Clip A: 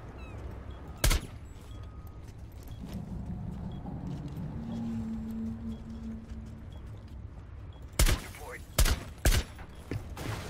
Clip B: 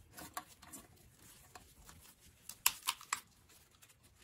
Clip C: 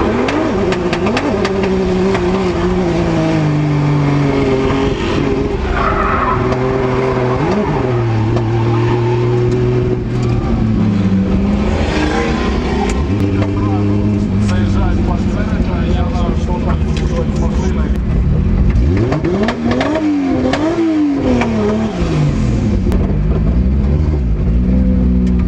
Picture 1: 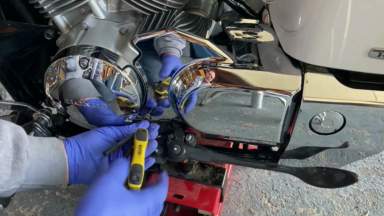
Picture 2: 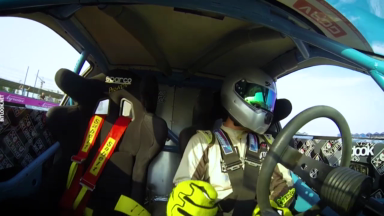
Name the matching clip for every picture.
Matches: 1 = B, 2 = C